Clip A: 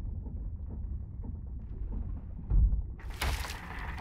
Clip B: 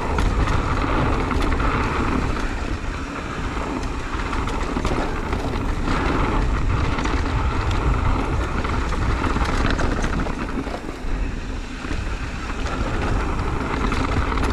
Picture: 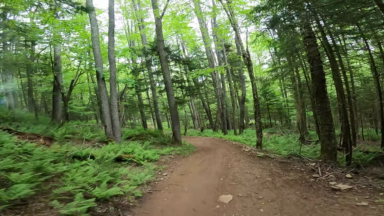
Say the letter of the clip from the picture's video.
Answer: B